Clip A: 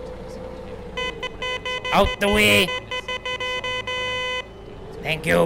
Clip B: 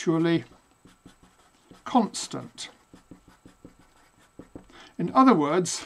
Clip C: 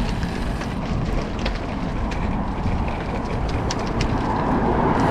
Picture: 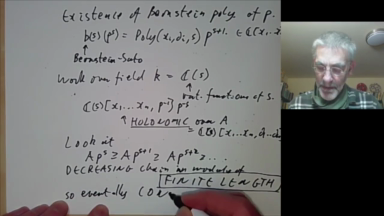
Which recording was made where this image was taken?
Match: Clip B